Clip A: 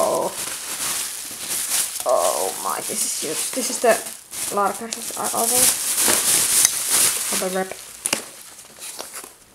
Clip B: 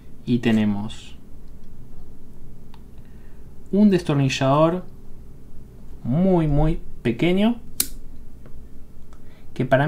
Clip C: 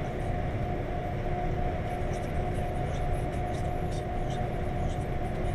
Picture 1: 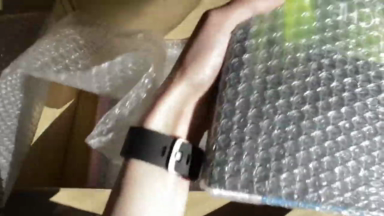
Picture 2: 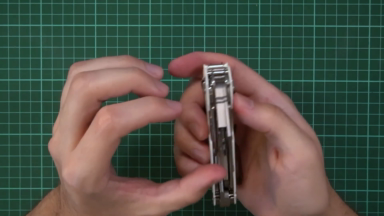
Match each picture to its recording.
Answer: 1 A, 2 B